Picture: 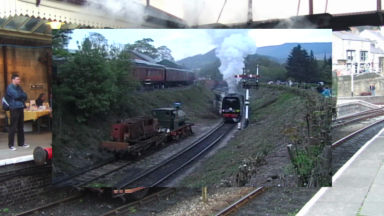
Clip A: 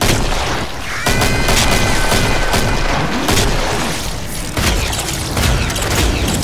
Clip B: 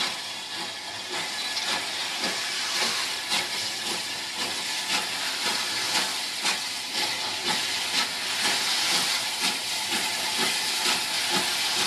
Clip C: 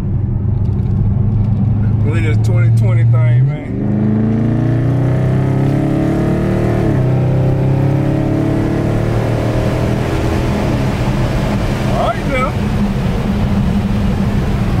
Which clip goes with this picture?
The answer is B